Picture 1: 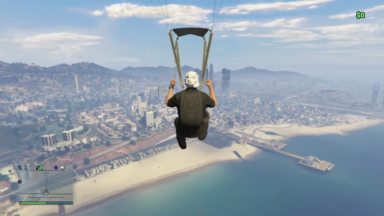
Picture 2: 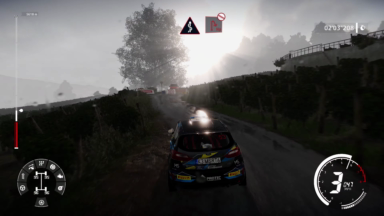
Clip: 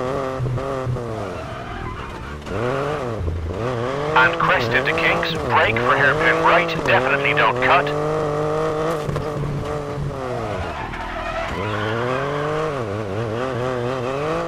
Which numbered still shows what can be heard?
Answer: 2